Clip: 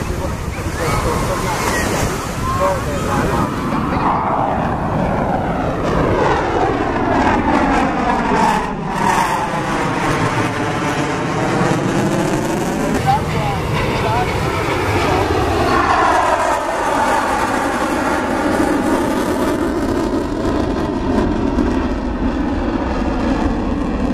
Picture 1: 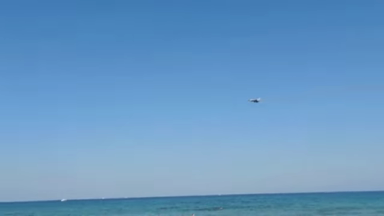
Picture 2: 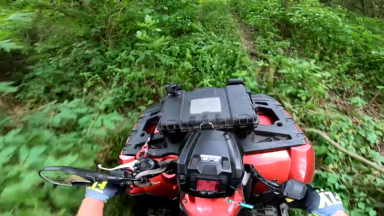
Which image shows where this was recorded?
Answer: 1